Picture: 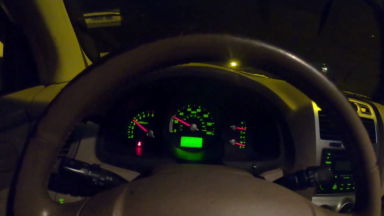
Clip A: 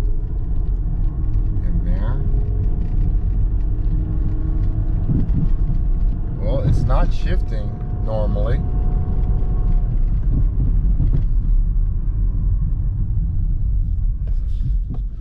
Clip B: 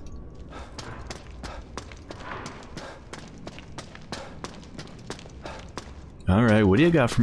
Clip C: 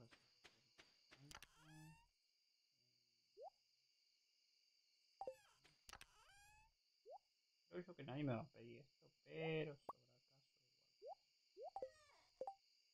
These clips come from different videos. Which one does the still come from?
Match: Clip A